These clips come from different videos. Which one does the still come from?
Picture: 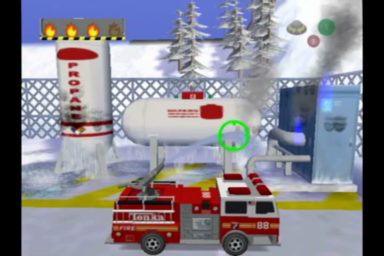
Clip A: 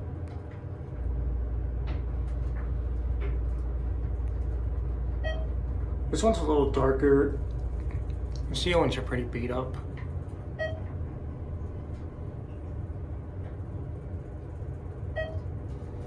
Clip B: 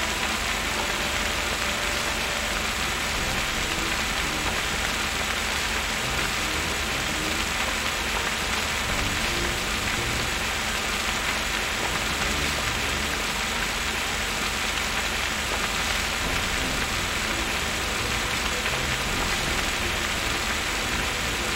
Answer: B